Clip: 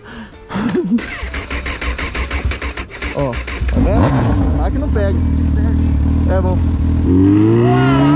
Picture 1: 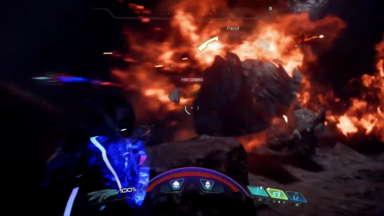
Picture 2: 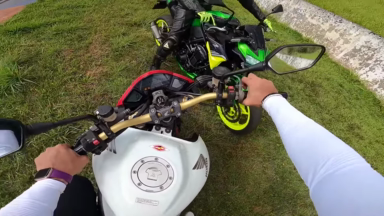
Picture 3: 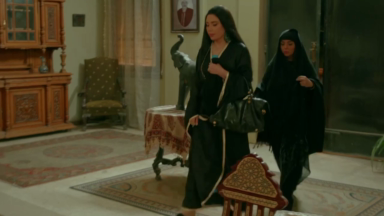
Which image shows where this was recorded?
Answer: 2